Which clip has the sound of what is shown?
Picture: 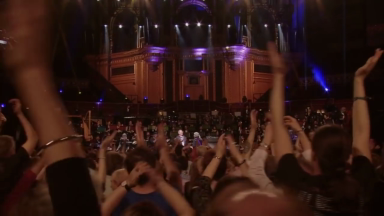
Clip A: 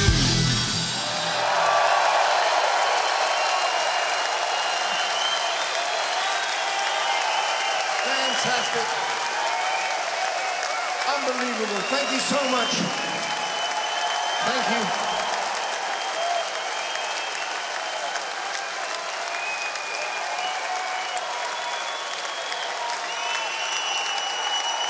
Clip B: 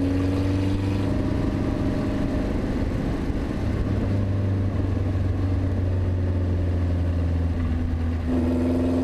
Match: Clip A